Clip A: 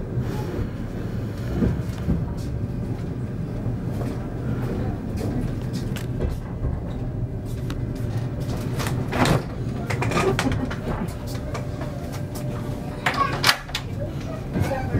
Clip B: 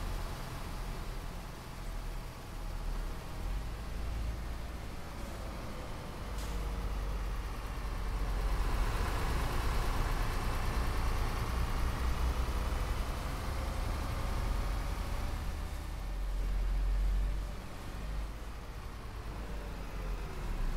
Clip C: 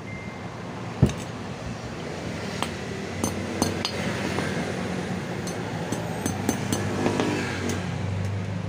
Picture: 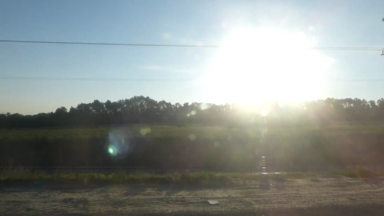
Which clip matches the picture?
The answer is A